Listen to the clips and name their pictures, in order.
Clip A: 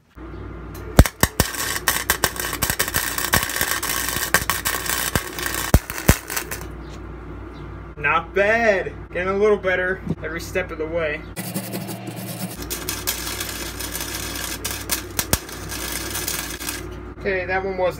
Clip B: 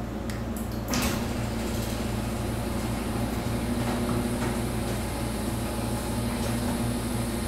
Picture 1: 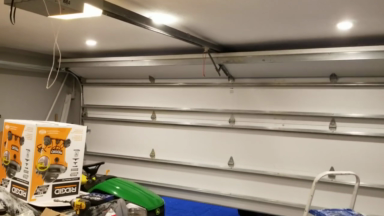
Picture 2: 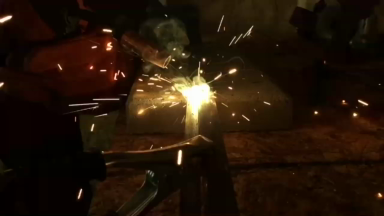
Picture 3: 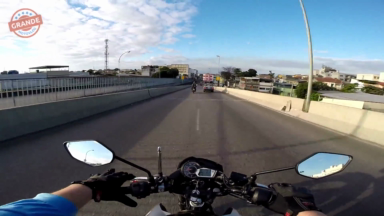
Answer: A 2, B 1